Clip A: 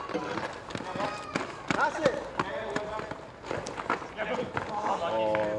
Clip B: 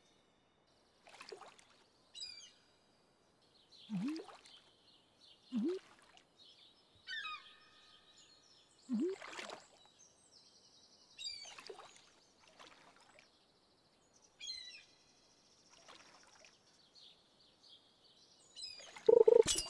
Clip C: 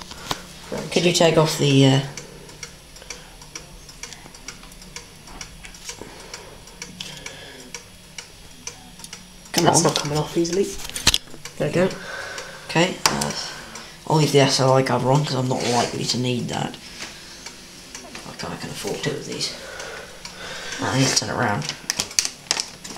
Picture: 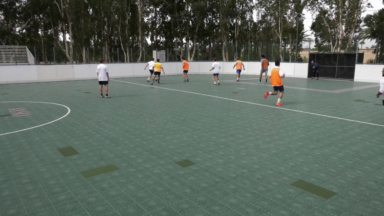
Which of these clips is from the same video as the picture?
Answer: A